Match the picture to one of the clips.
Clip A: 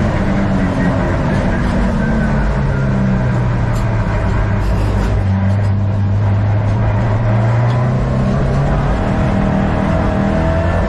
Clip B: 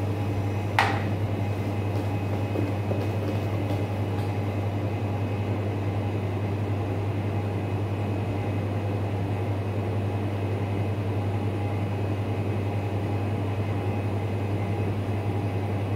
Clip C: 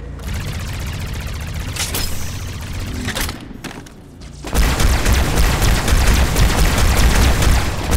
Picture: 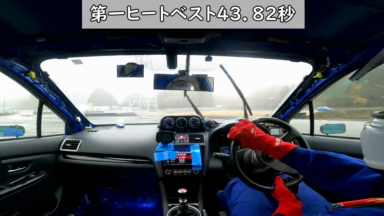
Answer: A